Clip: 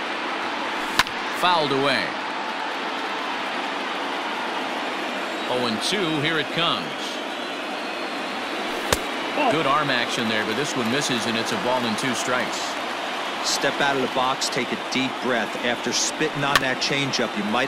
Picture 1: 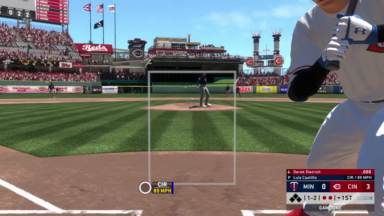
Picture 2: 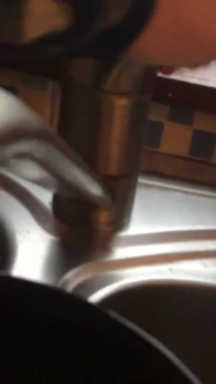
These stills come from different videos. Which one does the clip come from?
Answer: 1